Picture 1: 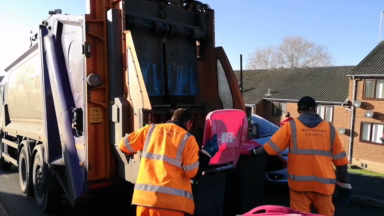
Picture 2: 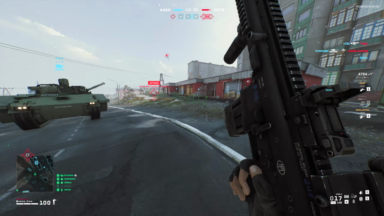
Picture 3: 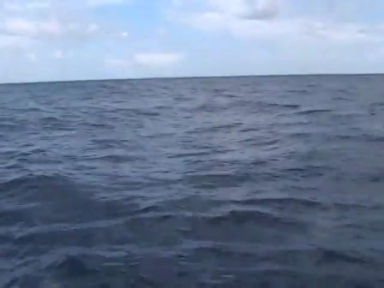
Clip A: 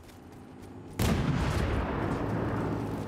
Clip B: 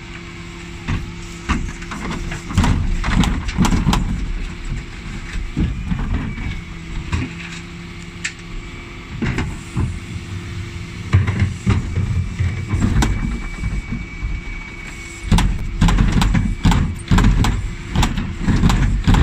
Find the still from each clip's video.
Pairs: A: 2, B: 1